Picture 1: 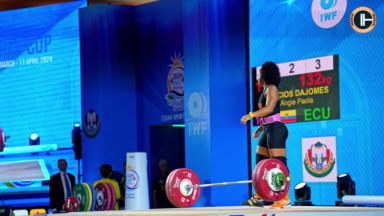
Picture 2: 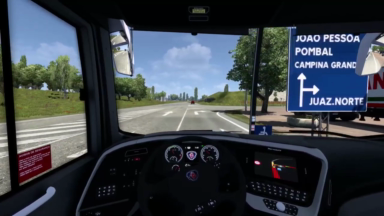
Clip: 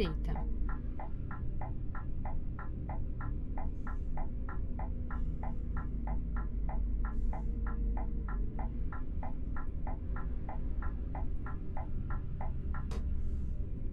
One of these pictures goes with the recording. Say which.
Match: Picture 2